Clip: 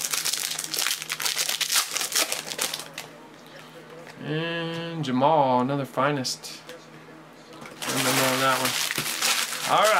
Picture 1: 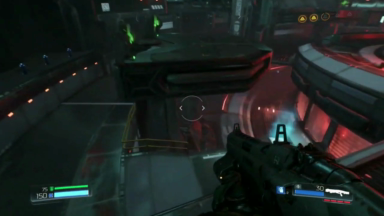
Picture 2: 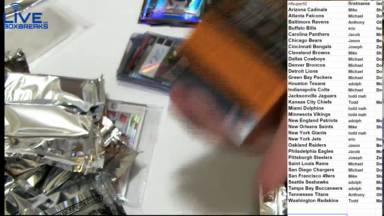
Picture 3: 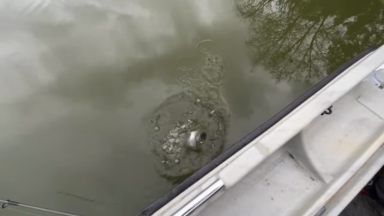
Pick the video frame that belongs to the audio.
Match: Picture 2